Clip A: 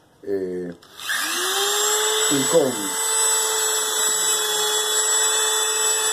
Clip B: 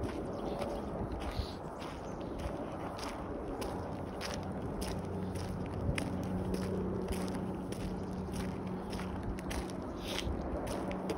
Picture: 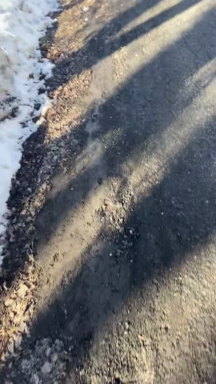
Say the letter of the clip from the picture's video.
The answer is B